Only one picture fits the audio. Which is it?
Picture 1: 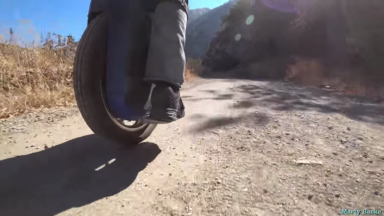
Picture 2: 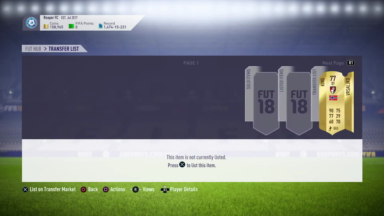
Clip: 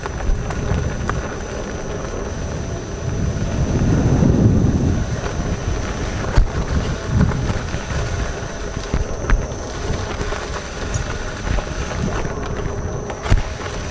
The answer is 1